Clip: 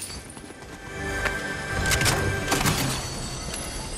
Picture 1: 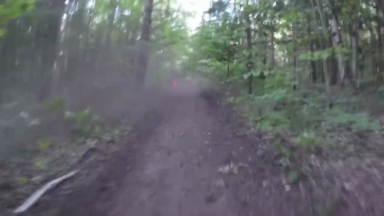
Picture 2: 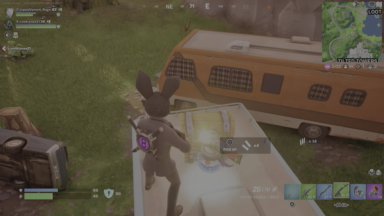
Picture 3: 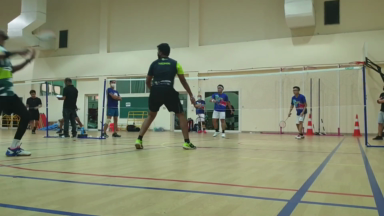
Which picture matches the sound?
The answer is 2